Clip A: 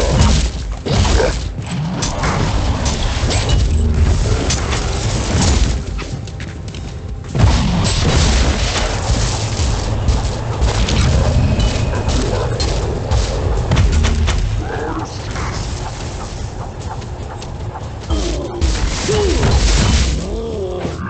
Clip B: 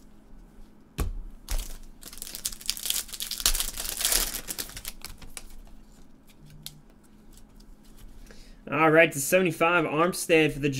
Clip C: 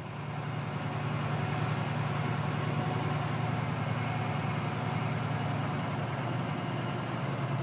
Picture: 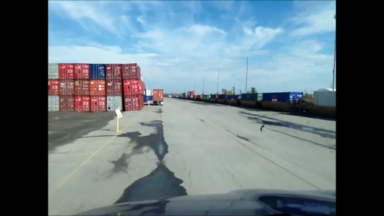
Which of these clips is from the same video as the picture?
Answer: C